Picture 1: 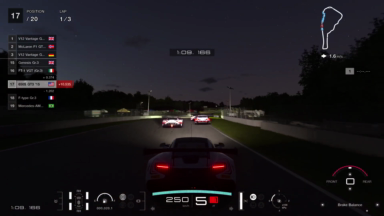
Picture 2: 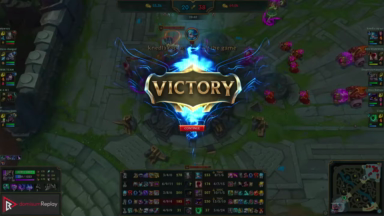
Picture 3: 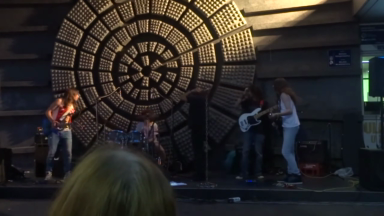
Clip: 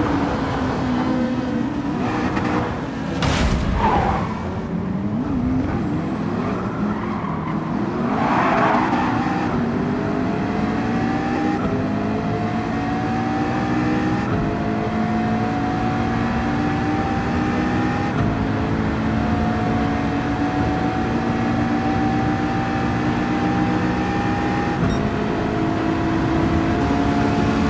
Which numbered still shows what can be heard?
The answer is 1